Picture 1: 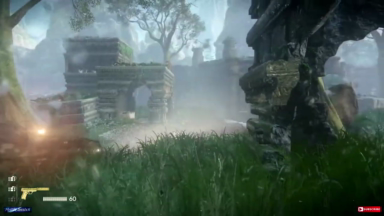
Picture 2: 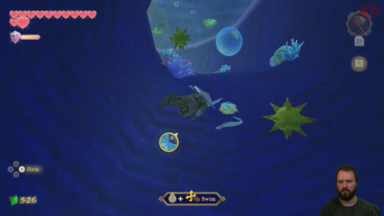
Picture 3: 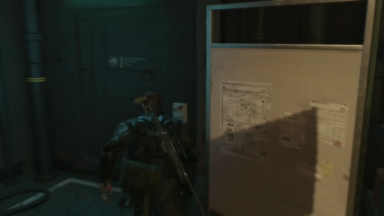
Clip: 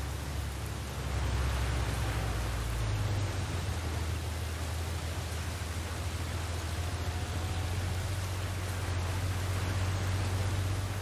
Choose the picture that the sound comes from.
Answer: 1